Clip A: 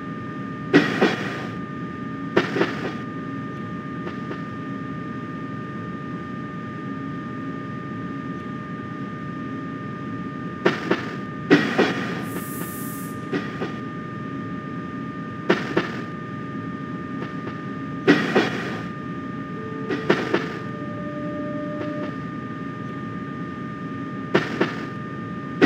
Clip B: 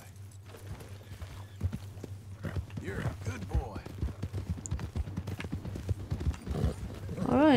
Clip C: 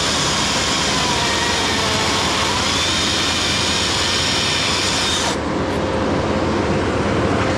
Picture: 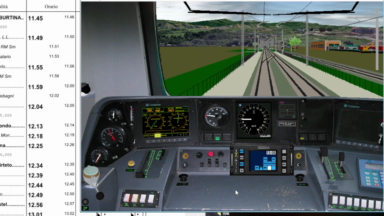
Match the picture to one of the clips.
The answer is A